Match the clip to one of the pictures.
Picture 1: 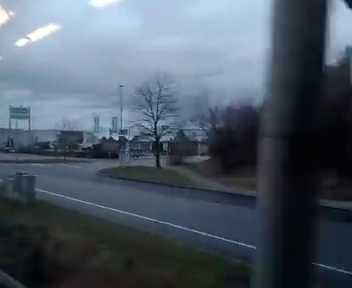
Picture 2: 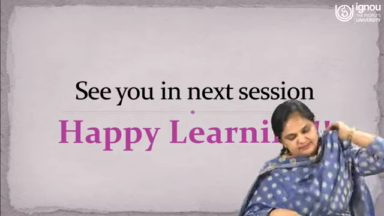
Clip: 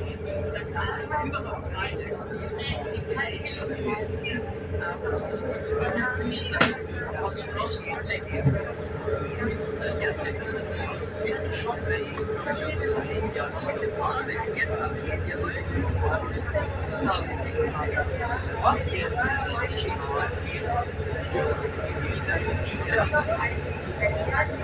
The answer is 1